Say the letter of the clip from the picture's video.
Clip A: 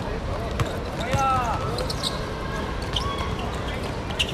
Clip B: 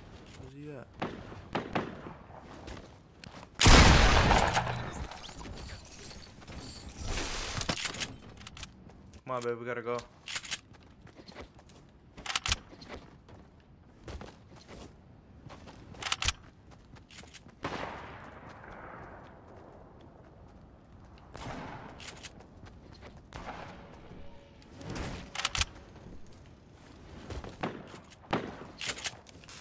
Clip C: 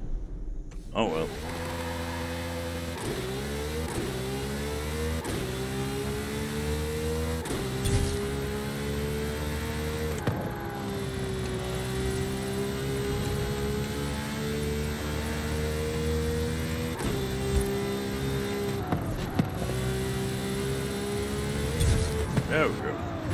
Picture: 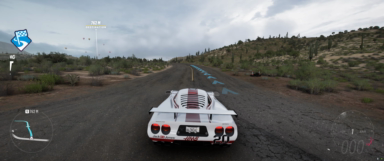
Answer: C